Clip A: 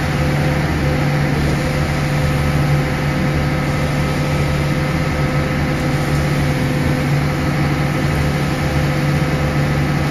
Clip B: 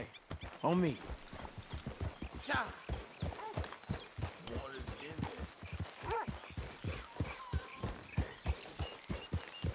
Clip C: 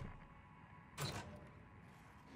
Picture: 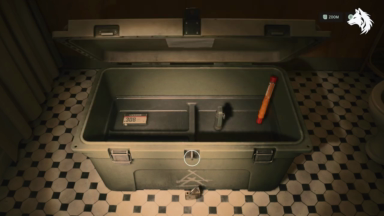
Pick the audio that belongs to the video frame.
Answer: C